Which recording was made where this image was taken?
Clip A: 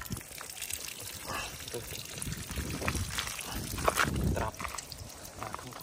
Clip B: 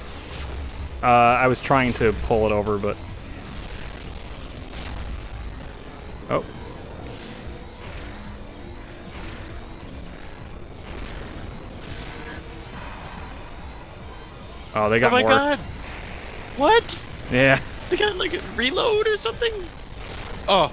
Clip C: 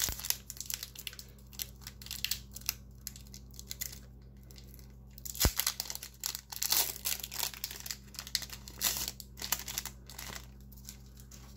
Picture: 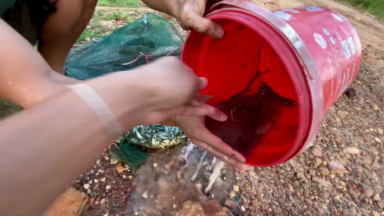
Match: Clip A